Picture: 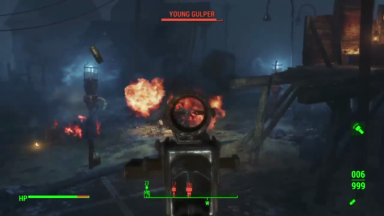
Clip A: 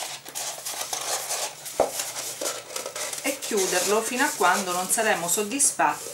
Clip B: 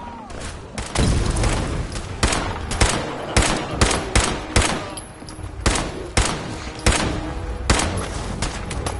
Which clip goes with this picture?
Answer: B